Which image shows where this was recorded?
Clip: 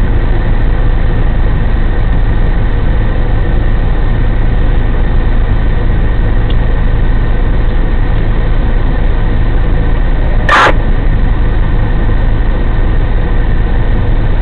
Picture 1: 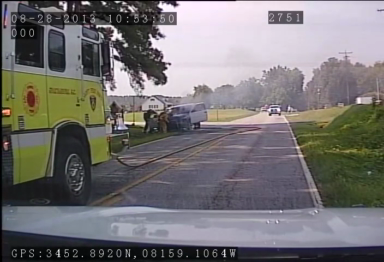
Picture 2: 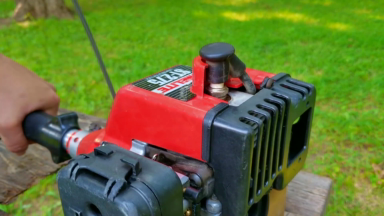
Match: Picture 1